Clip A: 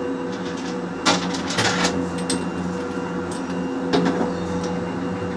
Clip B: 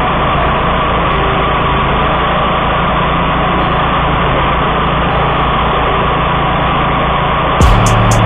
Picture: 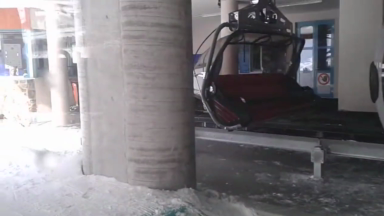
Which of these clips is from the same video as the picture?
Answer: A